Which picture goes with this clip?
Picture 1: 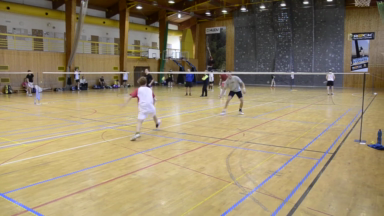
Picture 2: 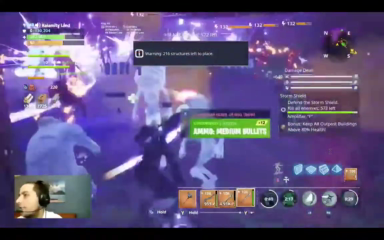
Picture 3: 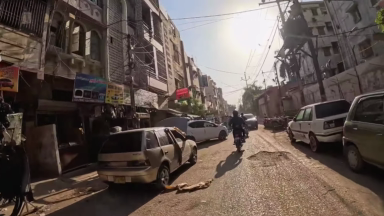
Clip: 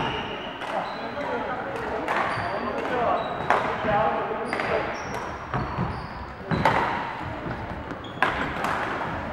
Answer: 1